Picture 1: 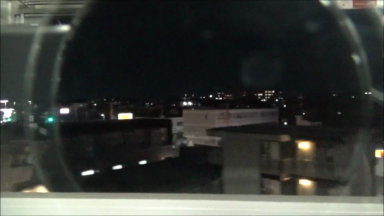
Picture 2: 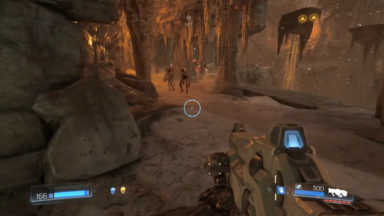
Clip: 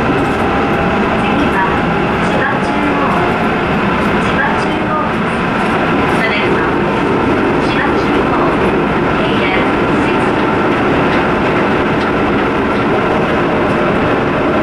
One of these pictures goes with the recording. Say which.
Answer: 1